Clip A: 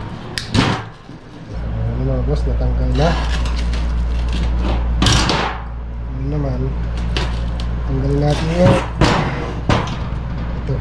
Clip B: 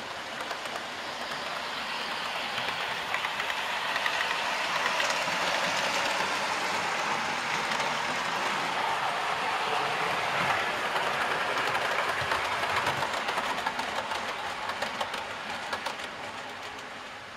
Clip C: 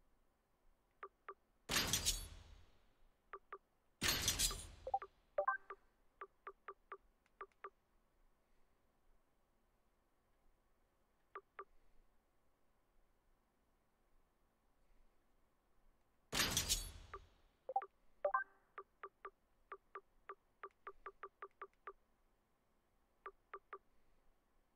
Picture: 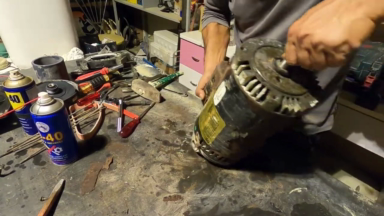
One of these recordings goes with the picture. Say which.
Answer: A